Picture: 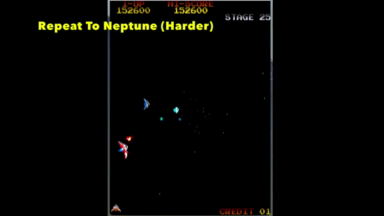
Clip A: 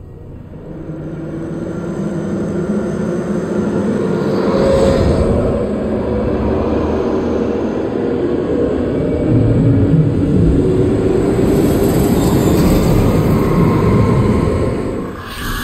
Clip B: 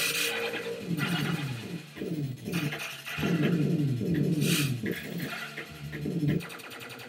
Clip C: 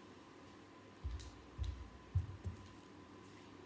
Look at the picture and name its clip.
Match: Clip B